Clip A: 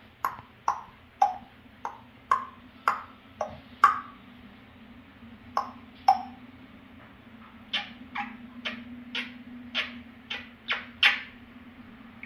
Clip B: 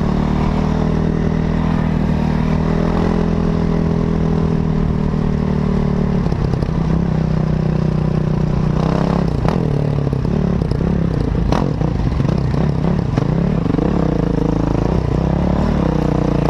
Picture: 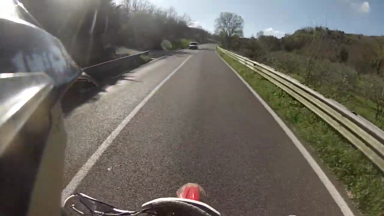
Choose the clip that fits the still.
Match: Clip B